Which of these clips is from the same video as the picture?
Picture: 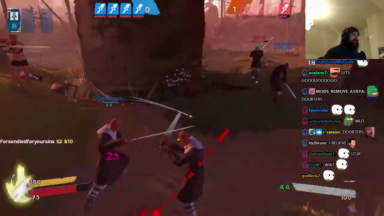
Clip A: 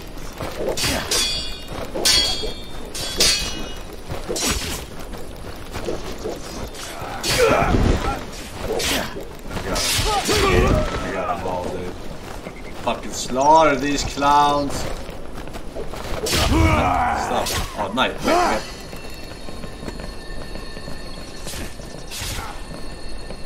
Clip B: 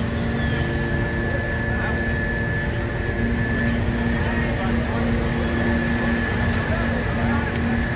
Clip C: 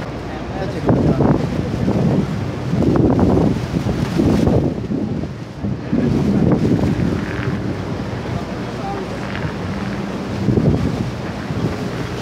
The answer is A